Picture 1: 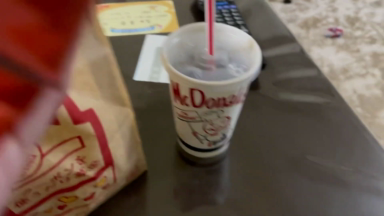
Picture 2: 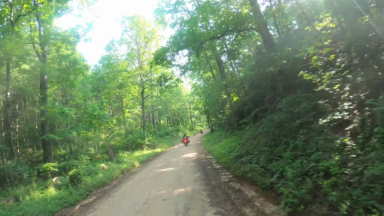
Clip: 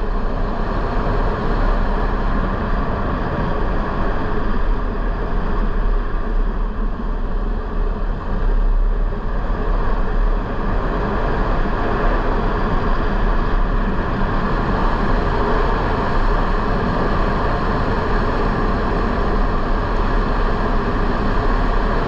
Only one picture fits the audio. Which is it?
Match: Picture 2